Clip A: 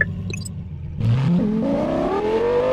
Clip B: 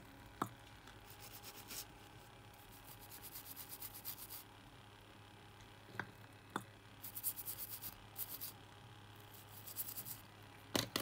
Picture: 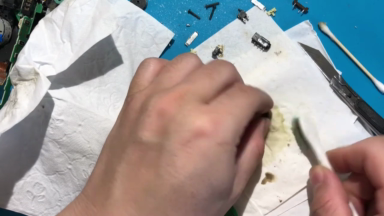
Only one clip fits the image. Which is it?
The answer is B